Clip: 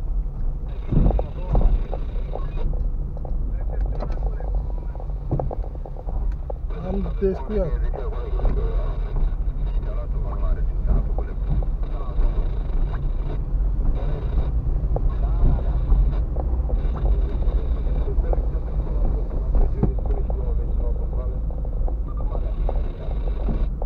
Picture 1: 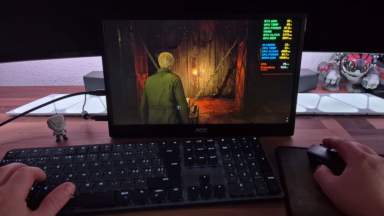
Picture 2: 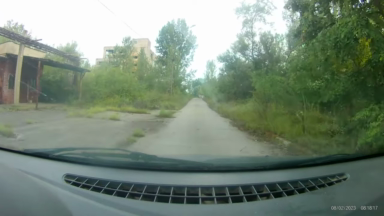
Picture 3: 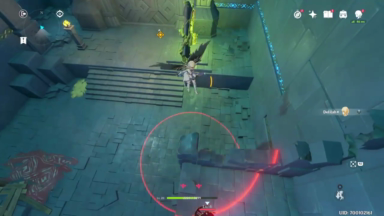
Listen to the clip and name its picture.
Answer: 2